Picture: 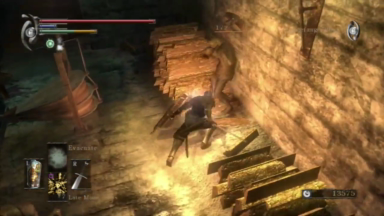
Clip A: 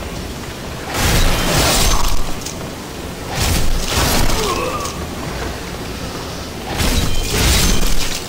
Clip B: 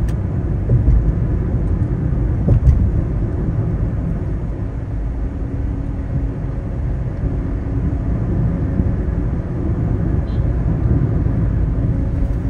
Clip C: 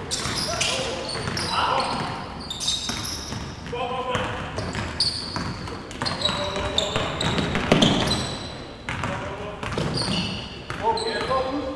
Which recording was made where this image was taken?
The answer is A